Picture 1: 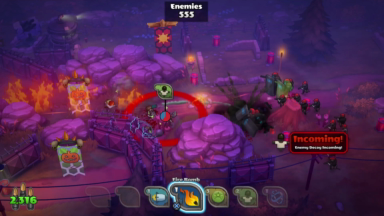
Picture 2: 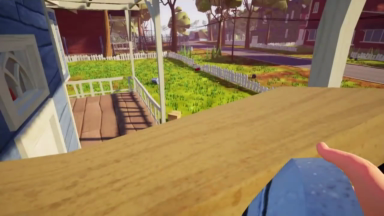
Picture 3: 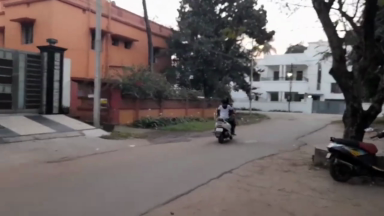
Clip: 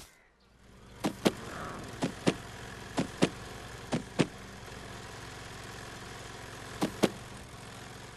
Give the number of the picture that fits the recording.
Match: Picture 2